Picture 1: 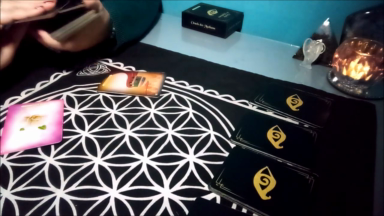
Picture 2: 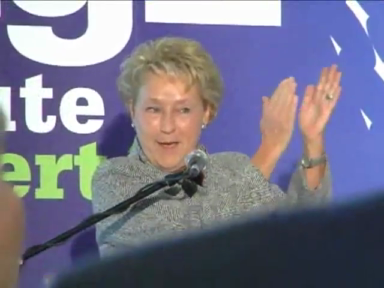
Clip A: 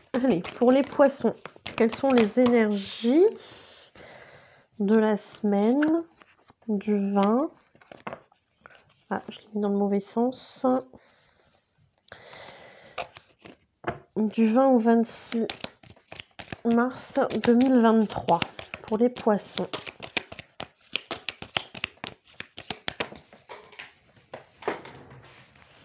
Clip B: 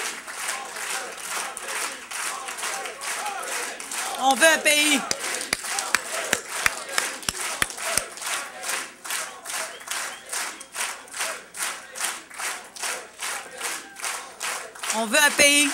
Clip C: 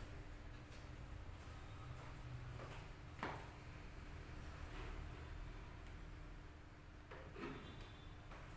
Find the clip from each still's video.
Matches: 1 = A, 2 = B